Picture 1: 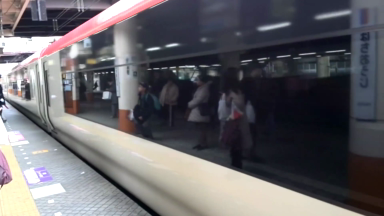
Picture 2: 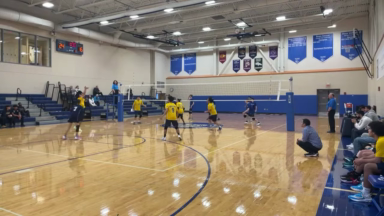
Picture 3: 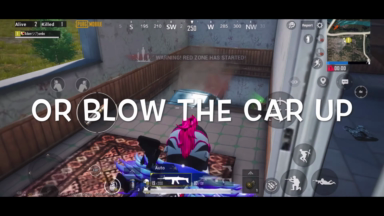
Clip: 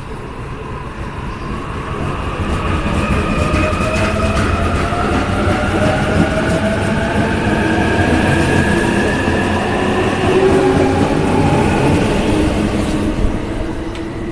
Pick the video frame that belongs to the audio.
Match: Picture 1